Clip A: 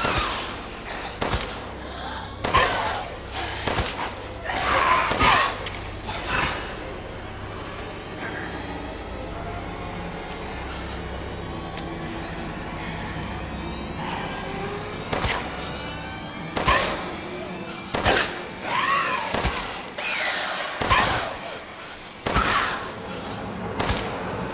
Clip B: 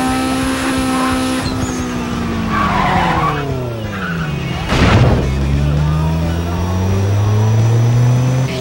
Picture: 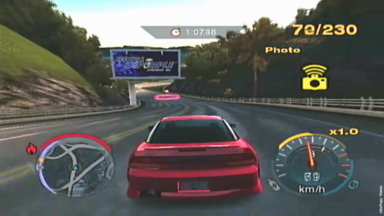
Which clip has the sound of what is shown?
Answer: B